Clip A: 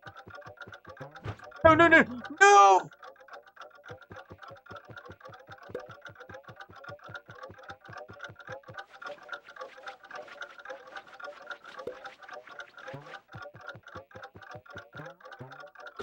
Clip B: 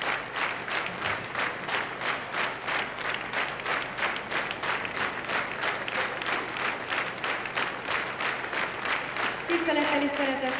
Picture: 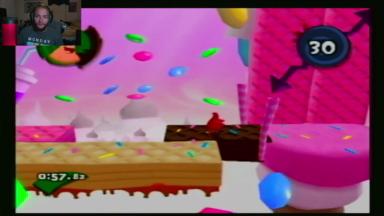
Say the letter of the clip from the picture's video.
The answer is A